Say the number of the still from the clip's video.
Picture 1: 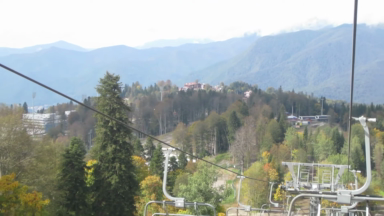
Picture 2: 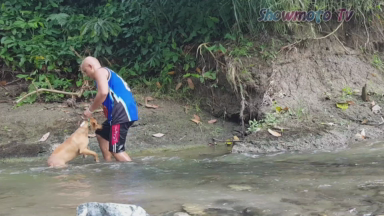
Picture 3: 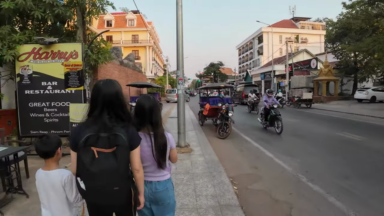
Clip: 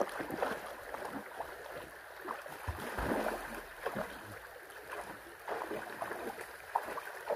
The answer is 2